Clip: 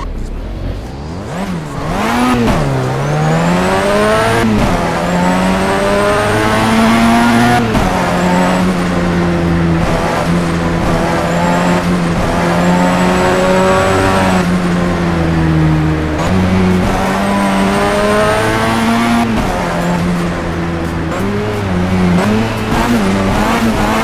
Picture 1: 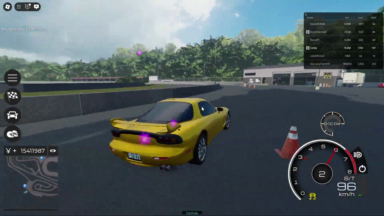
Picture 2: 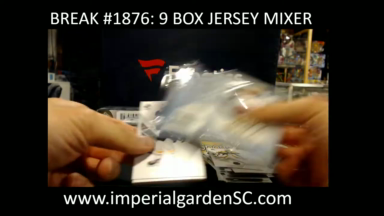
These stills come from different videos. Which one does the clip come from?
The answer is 1